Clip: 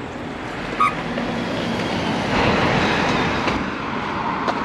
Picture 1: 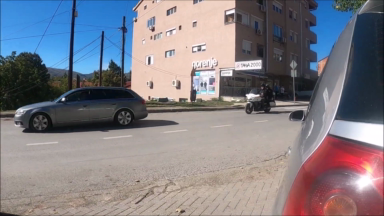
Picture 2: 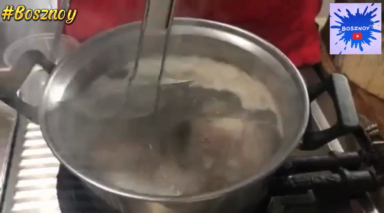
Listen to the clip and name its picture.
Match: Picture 1